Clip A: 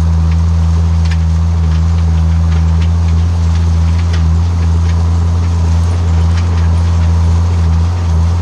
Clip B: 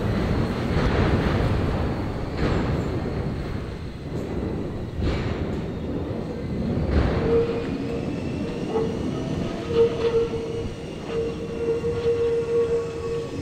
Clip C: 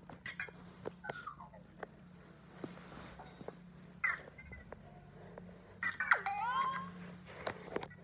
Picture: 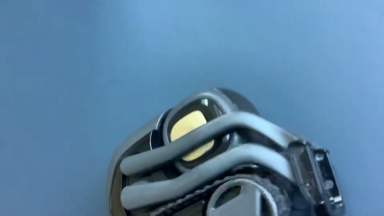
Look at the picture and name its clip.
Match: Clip C